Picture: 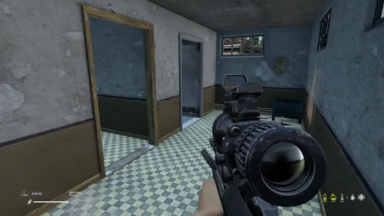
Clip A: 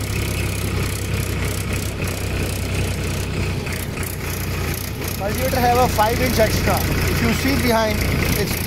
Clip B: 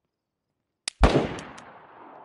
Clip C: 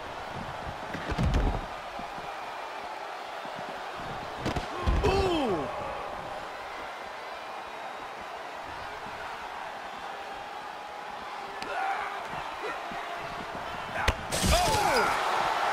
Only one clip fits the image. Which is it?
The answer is B